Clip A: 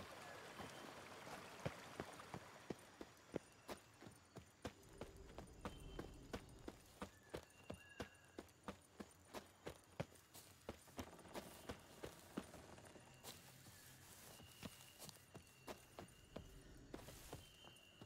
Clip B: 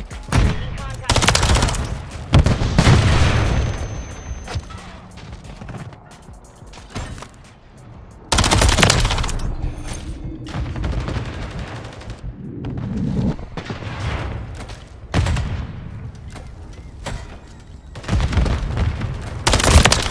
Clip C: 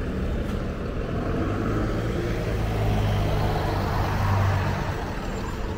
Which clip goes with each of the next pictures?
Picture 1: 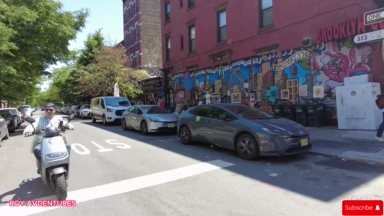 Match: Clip C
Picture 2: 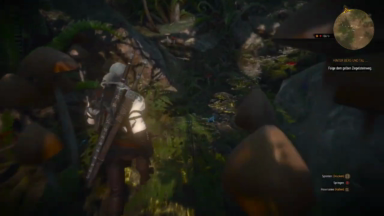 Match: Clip A